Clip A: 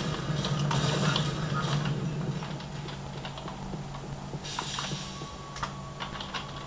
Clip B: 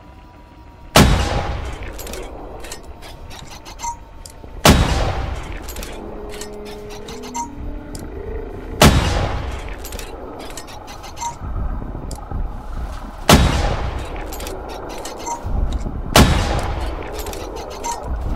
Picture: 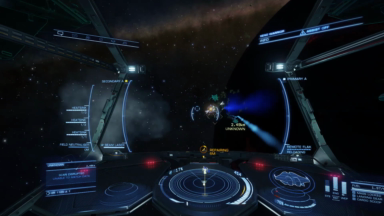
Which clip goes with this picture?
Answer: B